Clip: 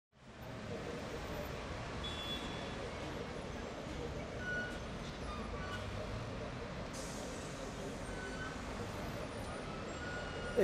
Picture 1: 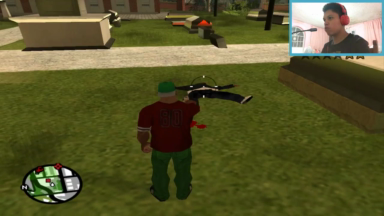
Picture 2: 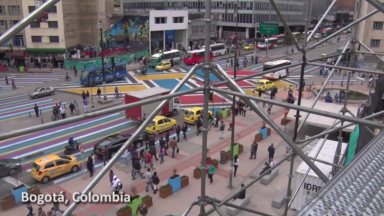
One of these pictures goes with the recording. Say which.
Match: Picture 2